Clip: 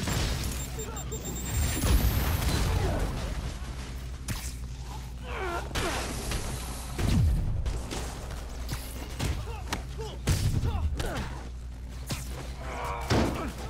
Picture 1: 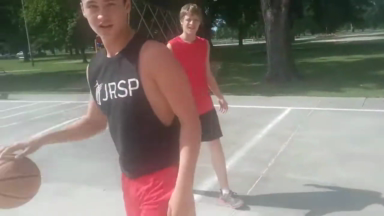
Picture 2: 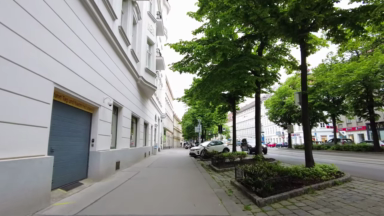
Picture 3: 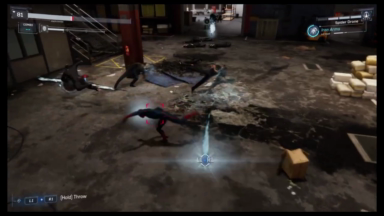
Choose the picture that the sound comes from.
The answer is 3